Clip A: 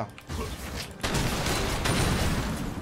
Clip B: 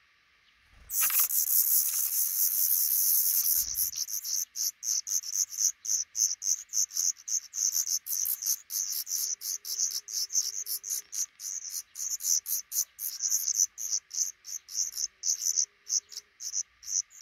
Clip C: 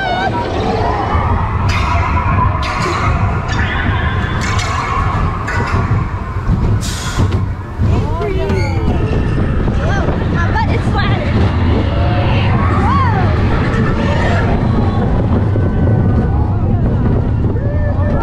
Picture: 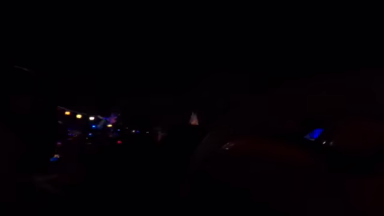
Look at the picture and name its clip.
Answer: C